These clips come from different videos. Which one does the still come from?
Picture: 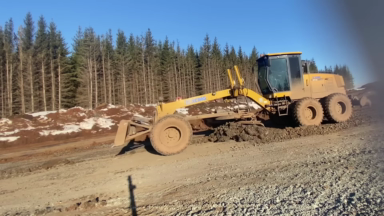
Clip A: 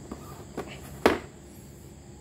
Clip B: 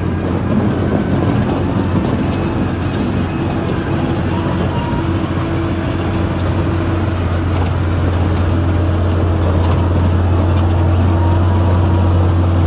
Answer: B